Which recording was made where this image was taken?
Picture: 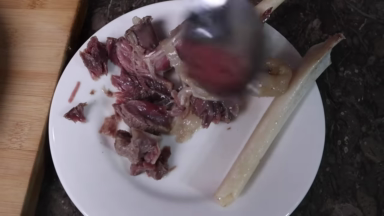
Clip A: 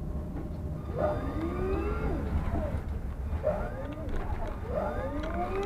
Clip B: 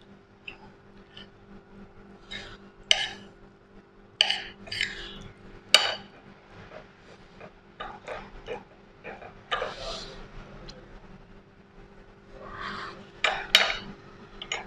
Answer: B